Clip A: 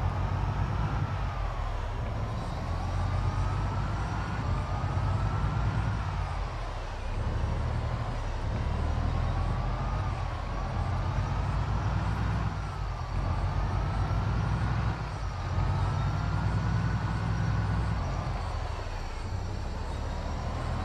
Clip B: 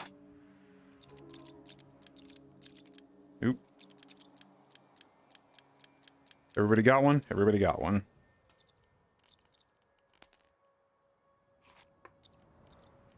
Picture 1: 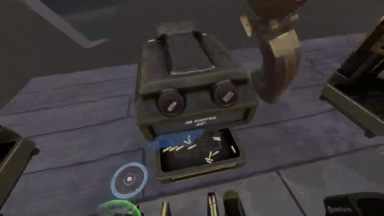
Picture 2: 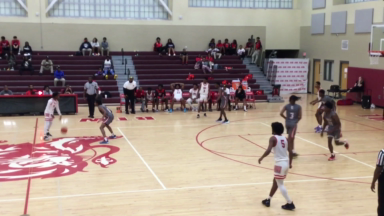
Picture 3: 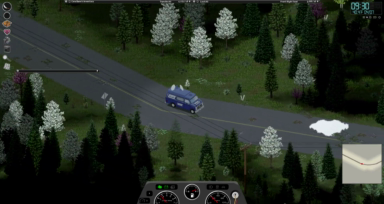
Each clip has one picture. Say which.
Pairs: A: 3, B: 1